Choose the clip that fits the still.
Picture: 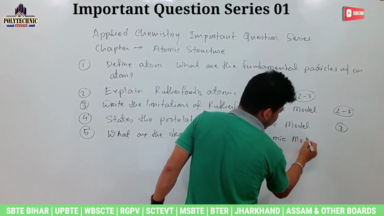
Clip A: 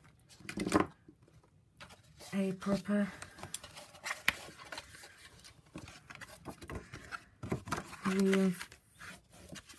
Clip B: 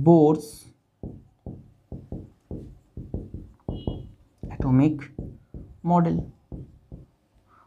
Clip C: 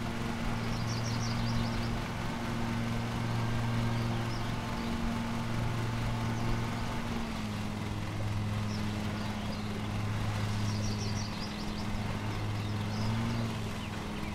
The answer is B